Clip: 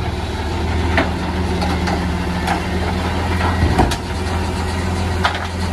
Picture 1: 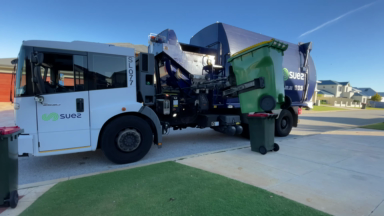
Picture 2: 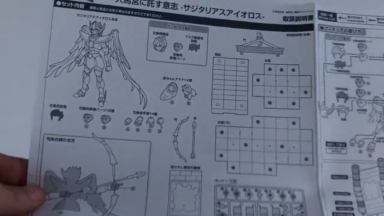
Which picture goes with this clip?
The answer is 1